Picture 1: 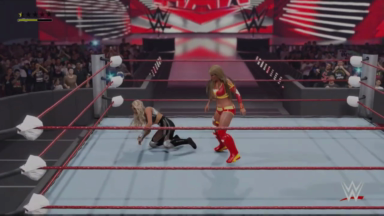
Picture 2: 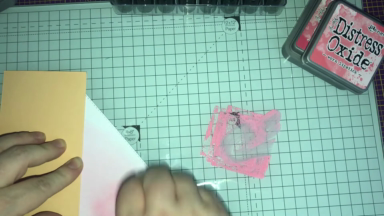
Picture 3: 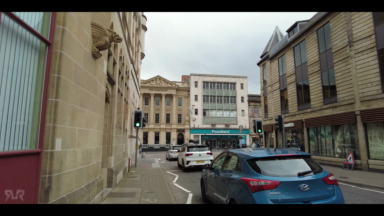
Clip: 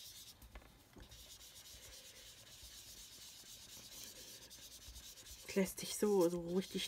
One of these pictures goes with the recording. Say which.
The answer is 2